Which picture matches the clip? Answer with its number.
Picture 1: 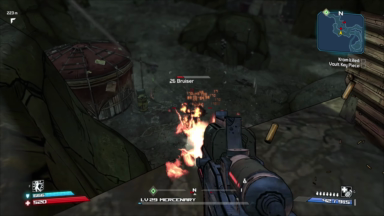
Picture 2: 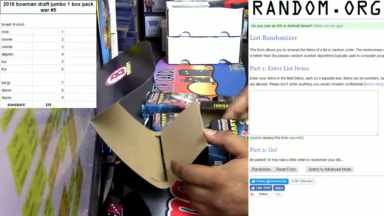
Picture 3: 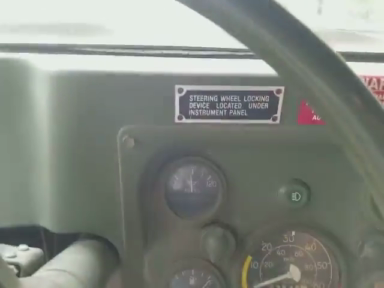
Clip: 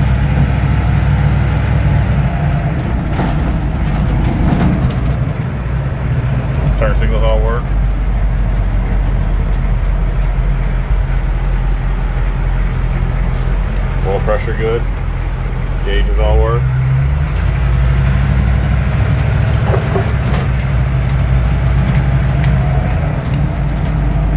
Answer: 3